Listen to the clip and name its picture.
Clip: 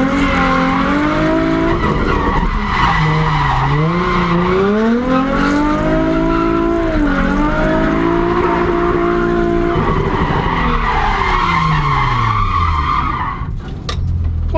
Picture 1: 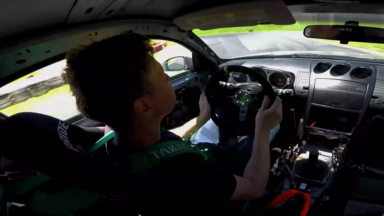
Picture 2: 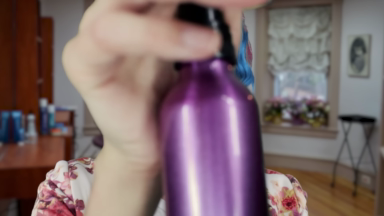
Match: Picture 1